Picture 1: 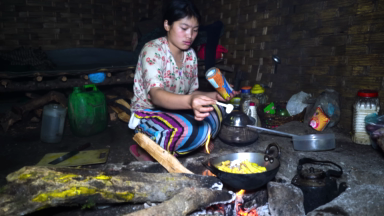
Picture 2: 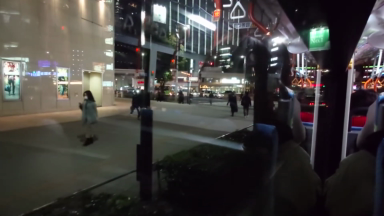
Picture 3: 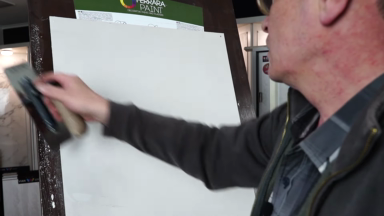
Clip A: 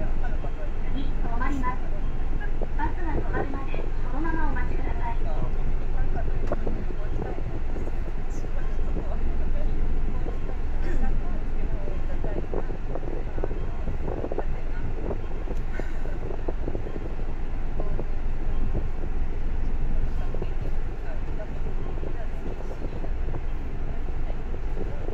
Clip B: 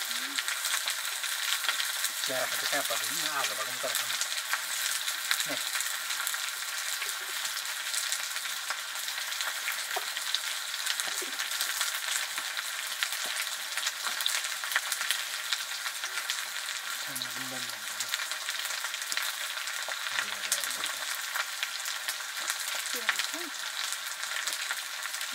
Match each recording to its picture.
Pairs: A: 2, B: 1